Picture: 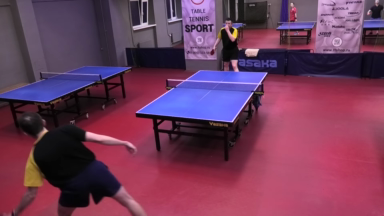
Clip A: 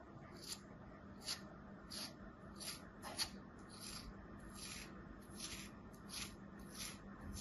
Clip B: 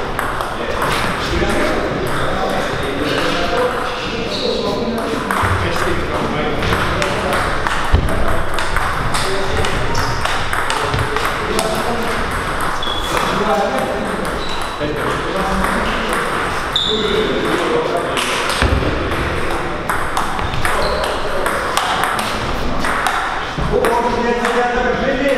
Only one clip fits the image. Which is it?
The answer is B